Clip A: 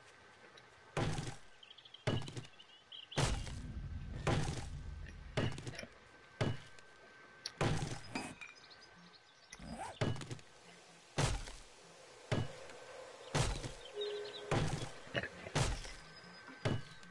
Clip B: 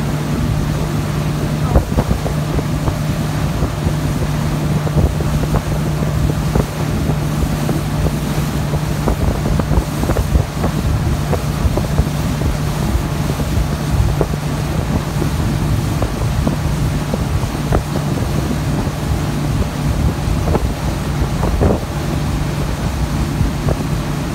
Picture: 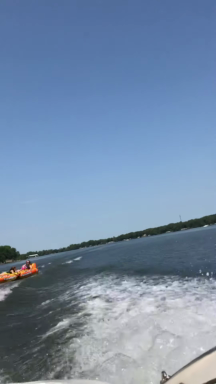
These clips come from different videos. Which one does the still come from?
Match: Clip B